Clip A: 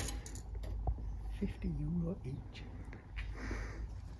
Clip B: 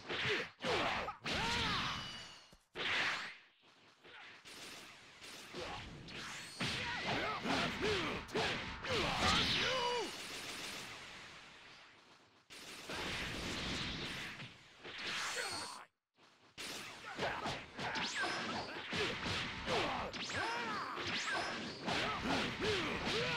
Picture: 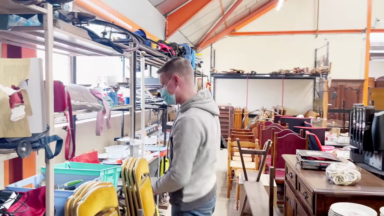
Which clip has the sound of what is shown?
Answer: A